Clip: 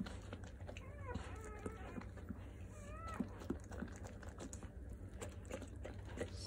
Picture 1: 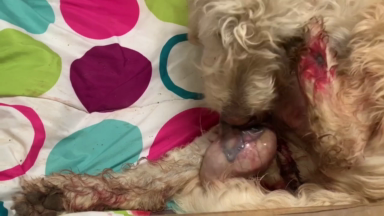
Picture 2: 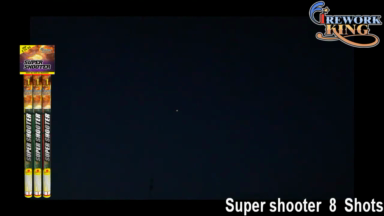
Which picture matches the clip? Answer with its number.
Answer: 1